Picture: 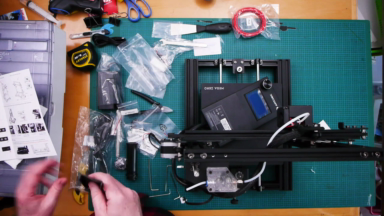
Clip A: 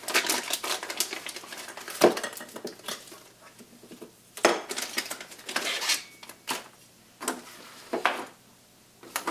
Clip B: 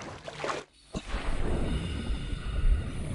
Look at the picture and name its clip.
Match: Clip A